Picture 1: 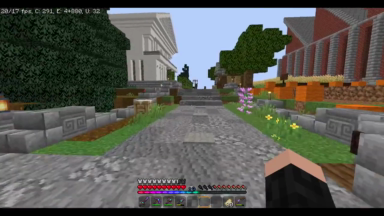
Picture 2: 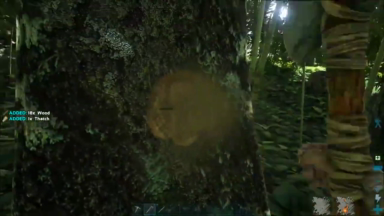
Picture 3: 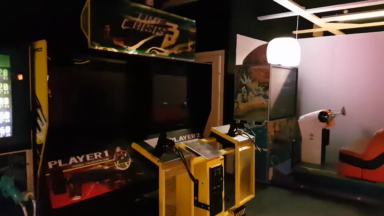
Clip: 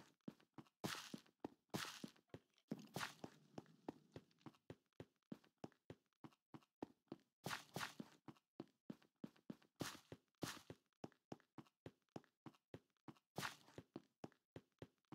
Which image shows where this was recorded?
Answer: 1